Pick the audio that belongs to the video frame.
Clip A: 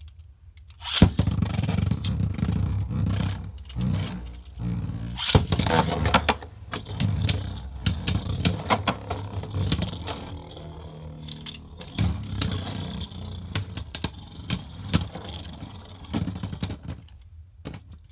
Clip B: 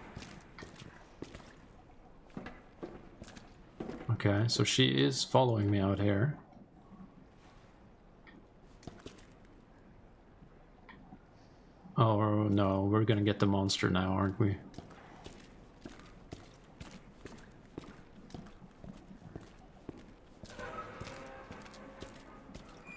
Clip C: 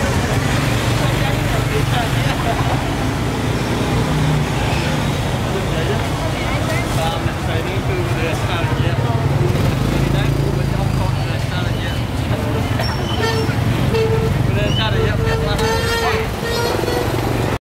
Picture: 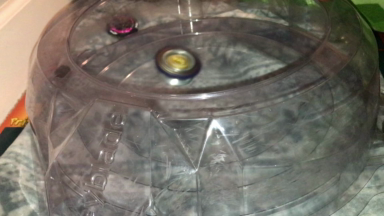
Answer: A